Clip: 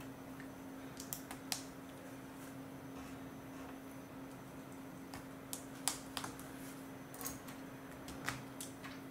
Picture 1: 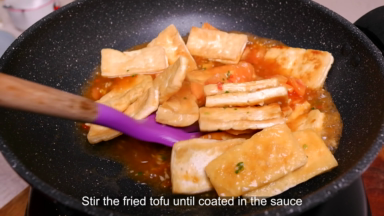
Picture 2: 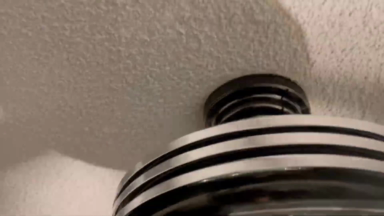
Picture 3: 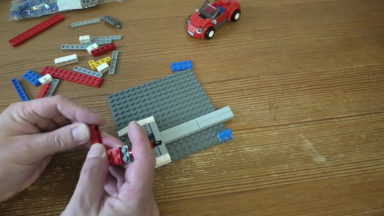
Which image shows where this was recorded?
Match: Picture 3